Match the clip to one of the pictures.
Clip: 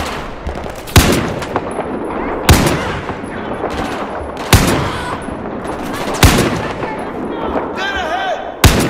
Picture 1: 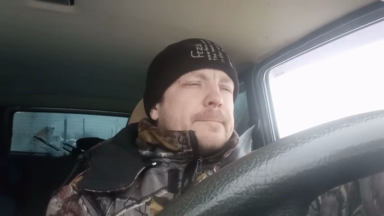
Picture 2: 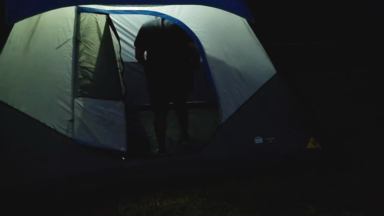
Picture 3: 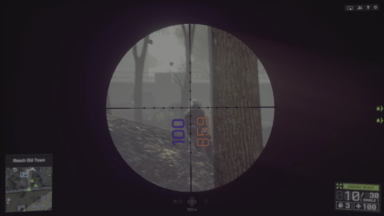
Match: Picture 3